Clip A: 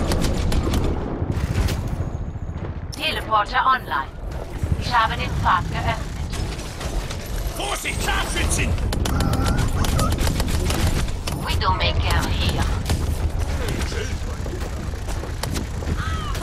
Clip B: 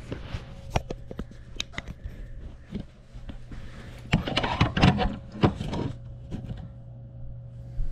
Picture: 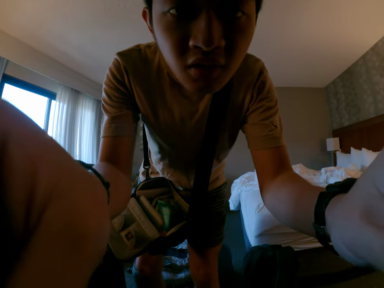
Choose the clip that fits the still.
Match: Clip B